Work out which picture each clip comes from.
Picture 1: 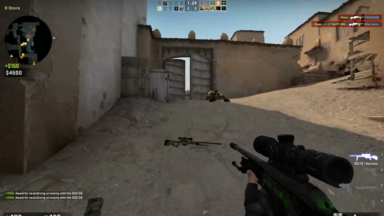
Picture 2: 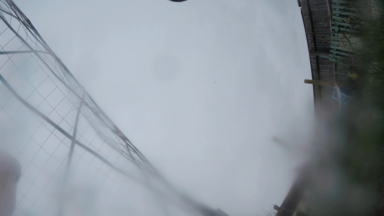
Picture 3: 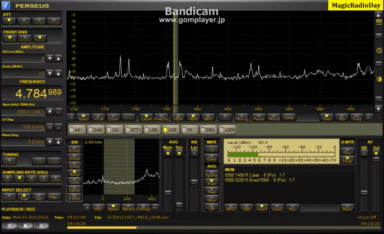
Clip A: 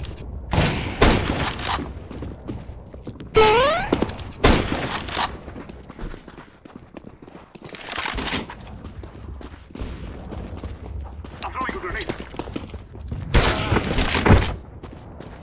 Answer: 1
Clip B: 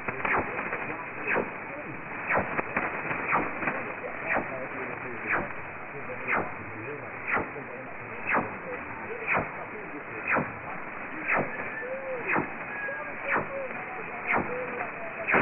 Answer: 3